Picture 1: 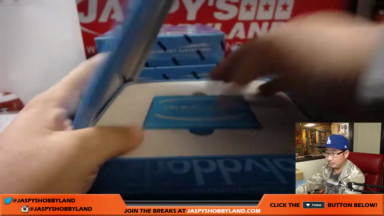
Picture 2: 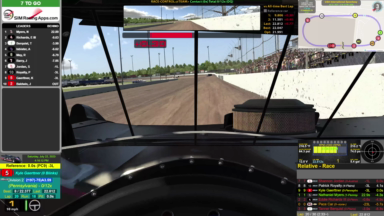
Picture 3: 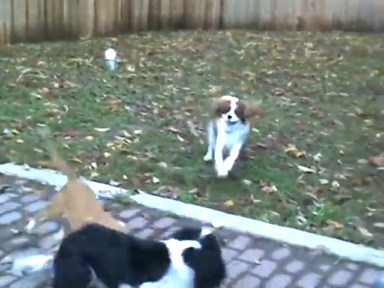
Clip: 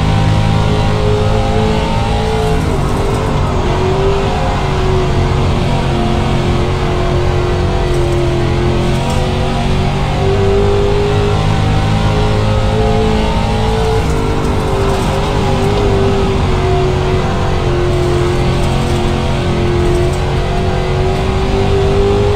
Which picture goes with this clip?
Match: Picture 2